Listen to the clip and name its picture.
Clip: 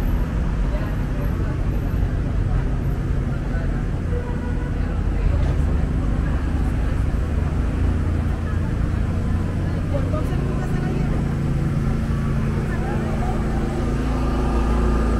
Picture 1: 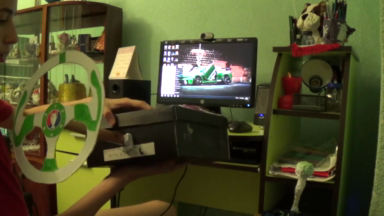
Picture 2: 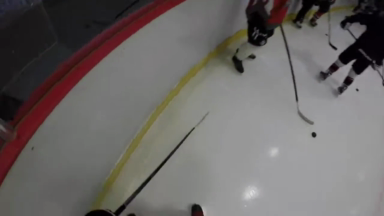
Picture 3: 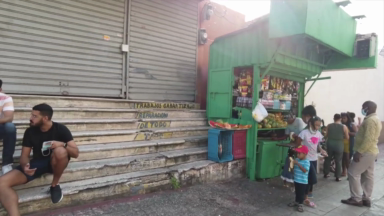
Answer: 3